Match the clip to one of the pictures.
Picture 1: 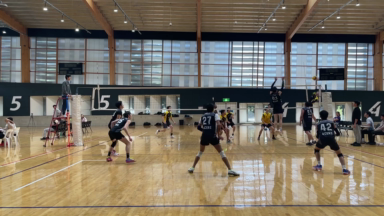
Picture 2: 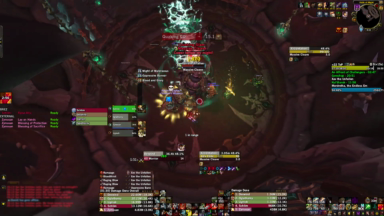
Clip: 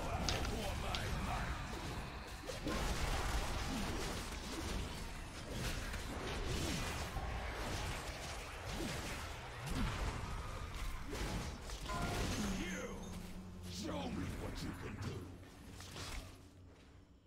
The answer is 2